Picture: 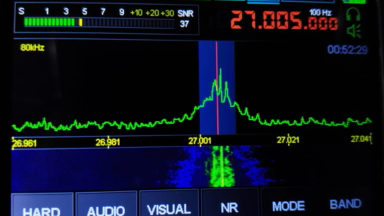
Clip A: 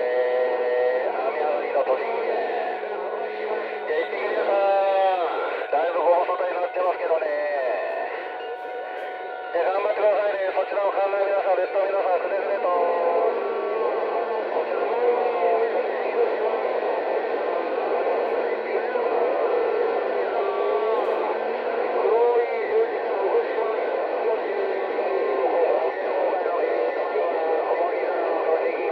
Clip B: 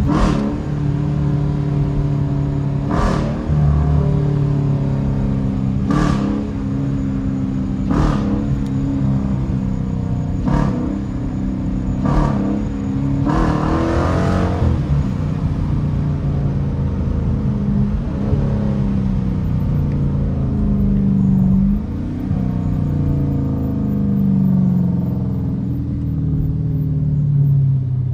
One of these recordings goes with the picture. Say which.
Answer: A